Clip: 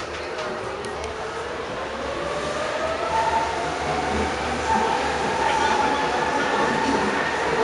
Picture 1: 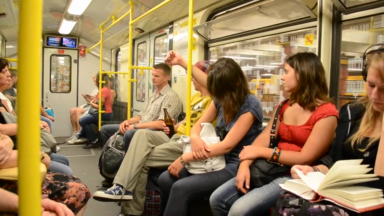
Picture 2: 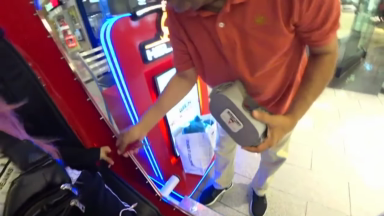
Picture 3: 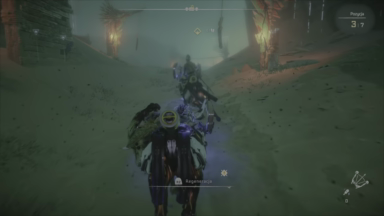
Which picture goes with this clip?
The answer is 1